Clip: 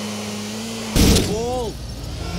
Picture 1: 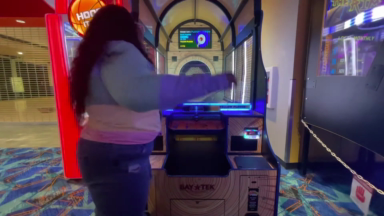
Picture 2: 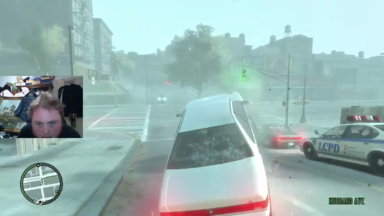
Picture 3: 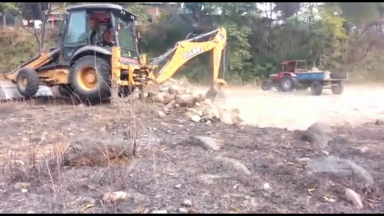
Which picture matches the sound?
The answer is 2